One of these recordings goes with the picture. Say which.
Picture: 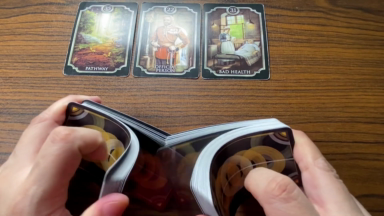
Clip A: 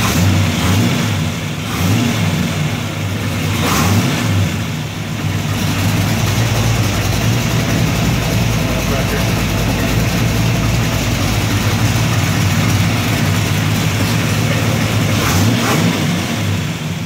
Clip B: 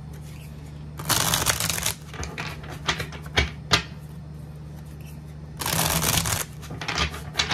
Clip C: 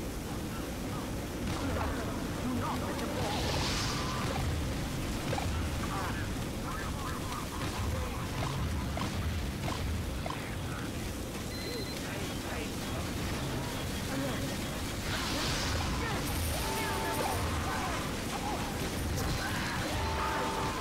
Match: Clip B